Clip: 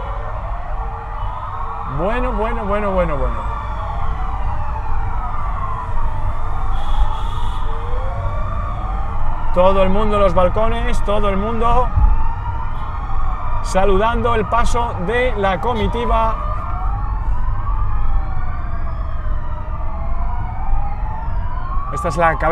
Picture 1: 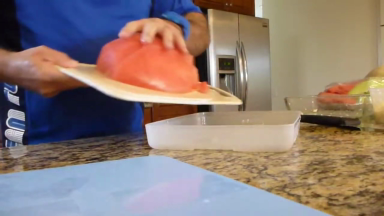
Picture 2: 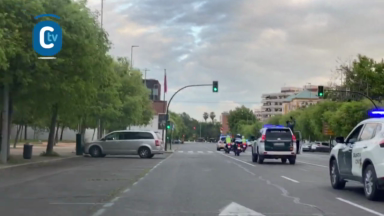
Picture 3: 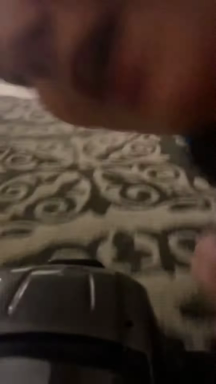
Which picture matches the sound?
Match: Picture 2